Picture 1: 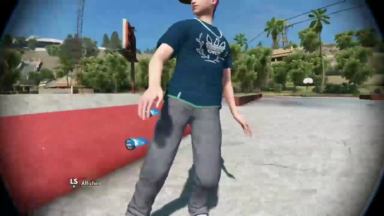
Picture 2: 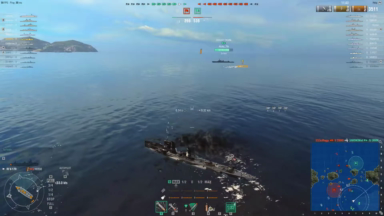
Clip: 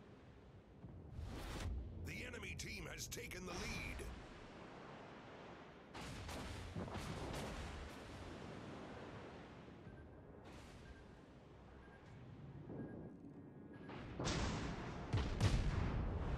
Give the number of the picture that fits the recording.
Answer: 2